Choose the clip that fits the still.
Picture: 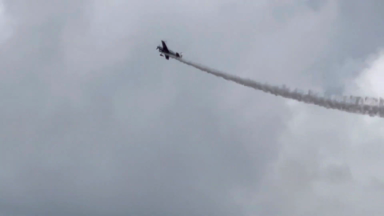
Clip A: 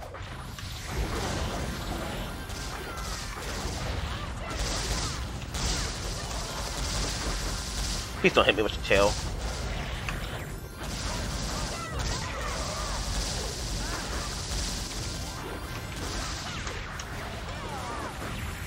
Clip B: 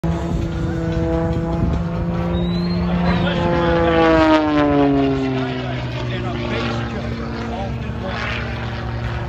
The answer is B